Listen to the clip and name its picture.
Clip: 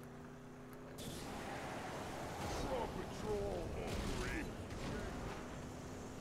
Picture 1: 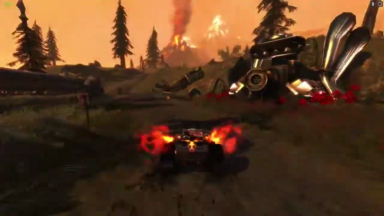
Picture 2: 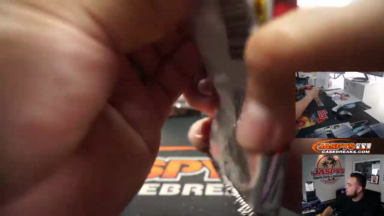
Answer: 1